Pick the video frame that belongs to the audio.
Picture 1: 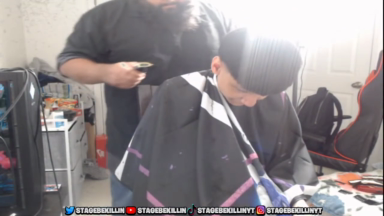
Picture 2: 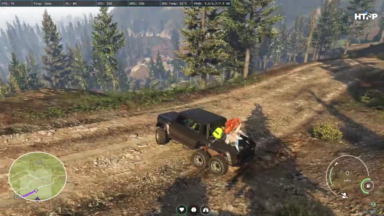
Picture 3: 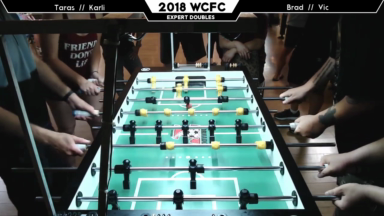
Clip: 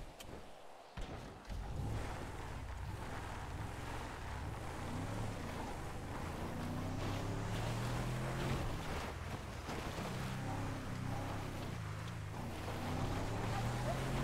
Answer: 2